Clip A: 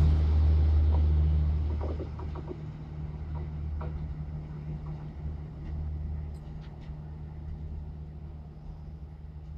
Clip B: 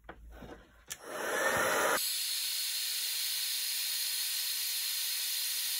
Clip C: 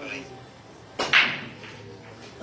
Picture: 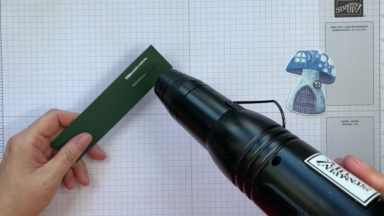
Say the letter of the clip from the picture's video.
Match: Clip B